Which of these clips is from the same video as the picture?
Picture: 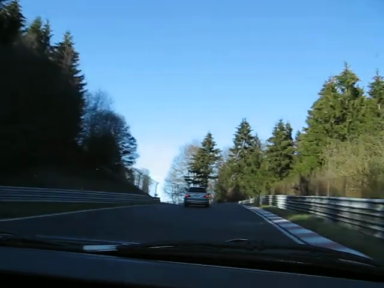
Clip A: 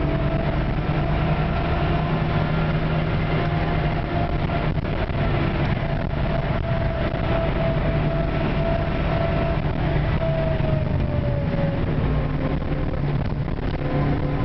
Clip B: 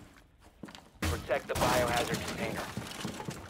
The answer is A